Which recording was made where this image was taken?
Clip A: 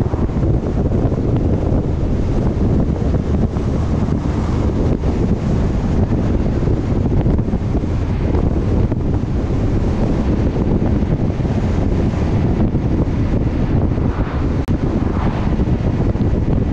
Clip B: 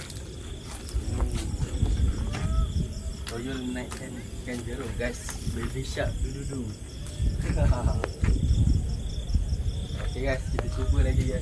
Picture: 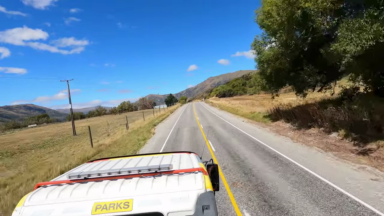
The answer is A